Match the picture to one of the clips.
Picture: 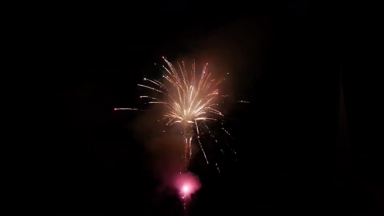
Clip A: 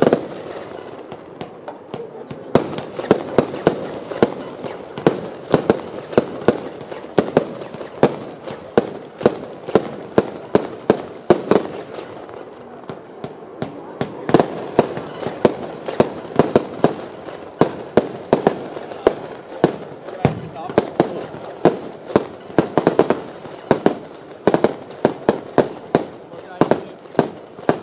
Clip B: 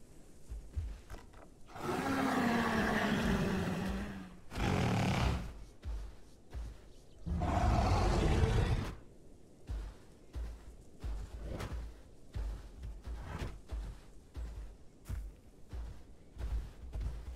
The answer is A